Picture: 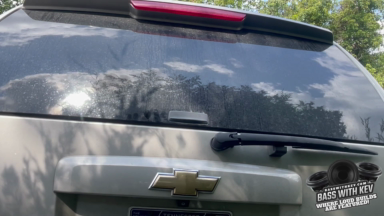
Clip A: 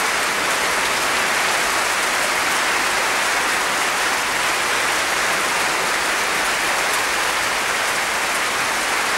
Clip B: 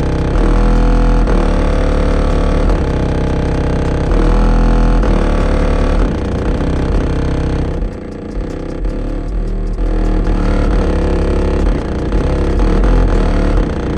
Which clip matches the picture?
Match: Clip B